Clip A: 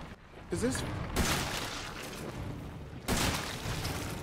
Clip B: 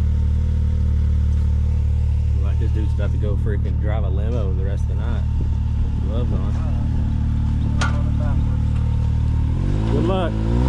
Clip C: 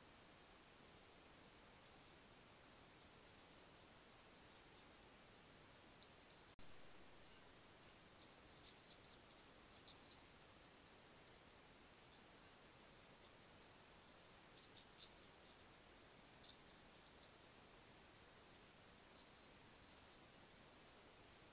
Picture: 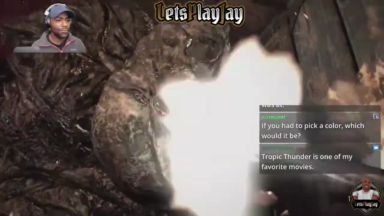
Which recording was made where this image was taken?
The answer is A